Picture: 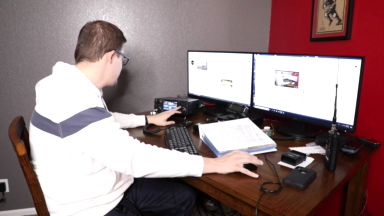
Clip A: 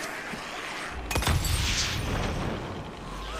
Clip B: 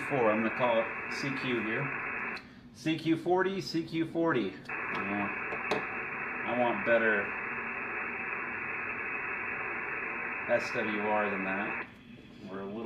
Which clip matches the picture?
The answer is B